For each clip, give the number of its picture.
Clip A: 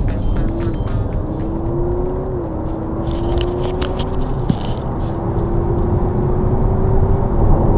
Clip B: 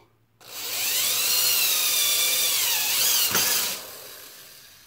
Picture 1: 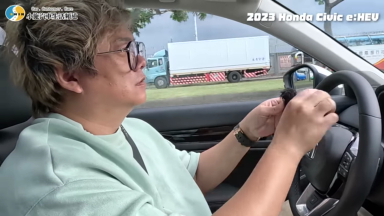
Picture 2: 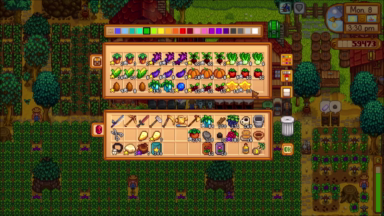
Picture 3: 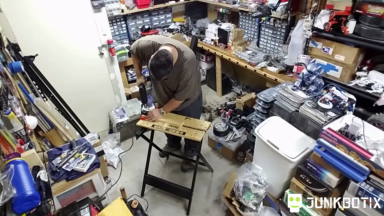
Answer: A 1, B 3